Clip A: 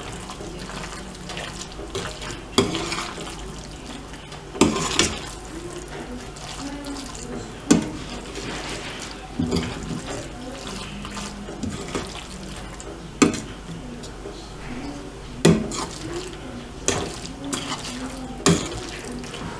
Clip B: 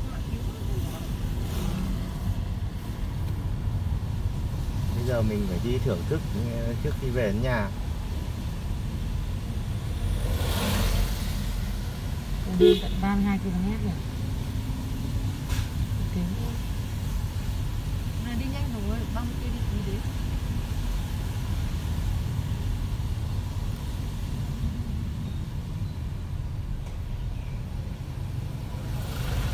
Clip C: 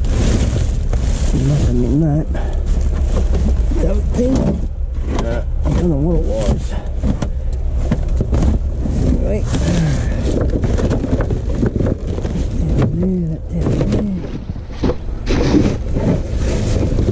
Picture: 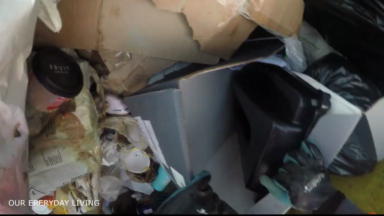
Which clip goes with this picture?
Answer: C